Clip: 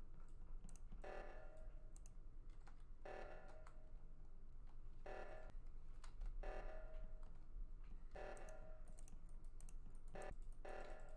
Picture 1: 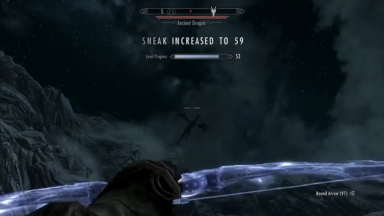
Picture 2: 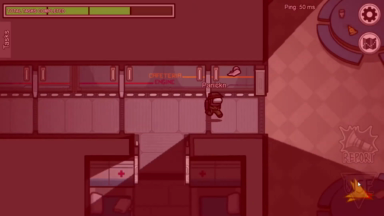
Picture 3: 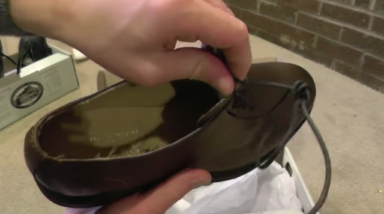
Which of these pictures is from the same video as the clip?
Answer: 2